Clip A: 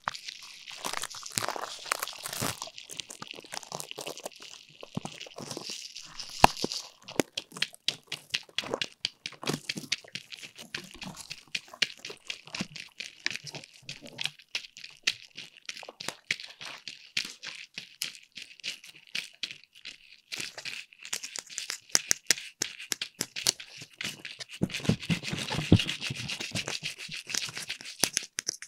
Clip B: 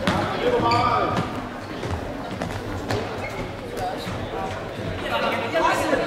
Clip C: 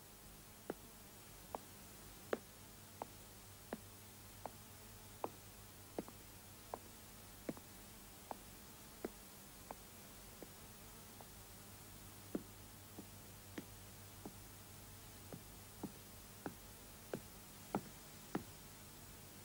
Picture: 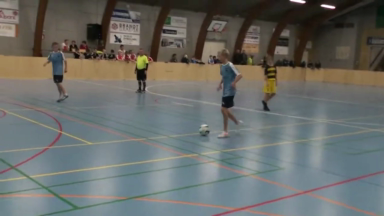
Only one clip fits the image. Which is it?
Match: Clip B